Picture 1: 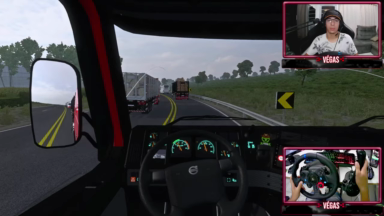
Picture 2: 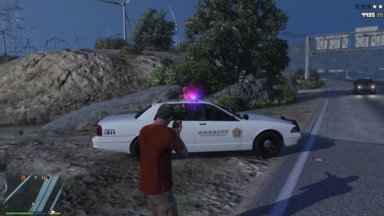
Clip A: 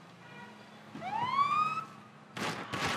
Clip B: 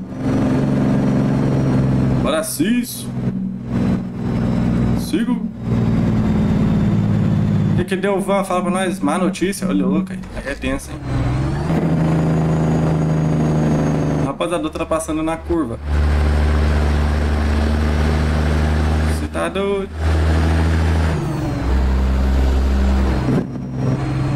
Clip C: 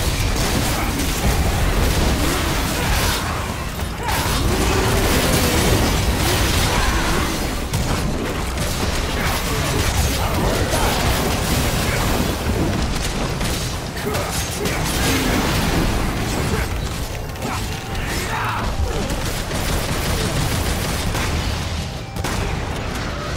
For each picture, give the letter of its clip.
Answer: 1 B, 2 A